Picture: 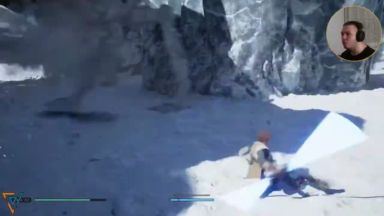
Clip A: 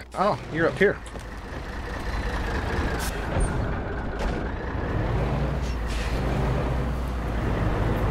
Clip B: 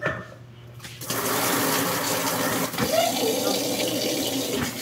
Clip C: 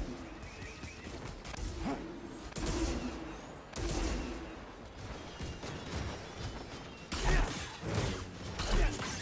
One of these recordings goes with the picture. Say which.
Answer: C